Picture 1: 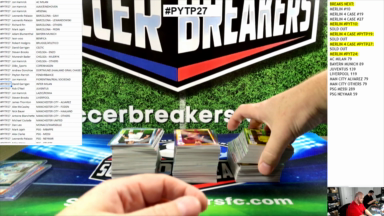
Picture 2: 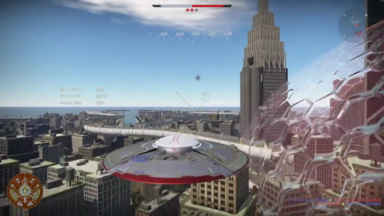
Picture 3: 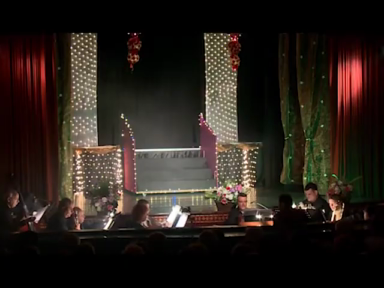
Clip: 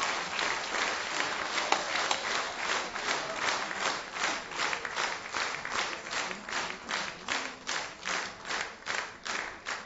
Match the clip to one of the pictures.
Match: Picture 3